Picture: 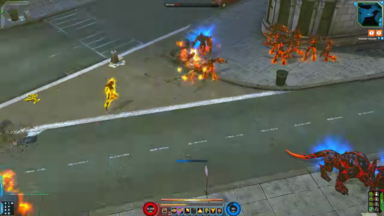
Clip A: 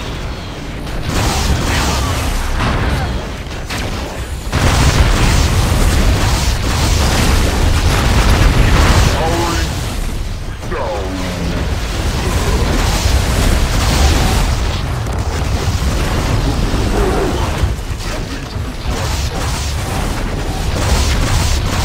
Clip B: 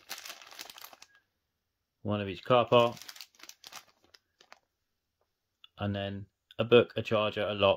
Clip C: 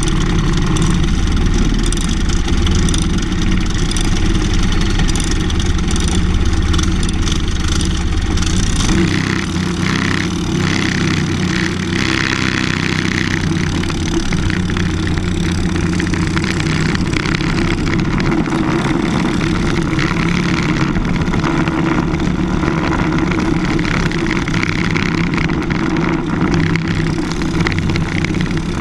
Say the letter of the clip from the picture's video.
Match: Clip A